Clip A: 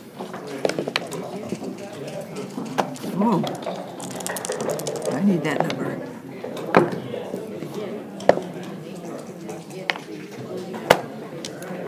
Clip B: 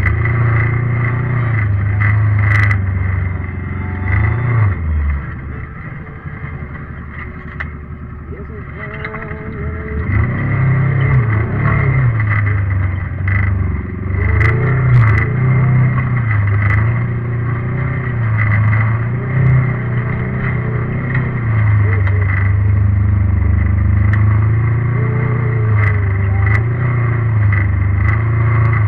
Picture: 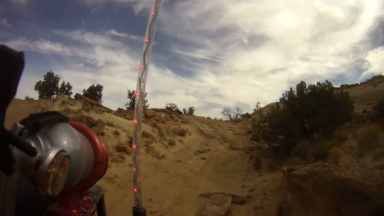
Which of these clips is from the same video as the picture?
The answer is B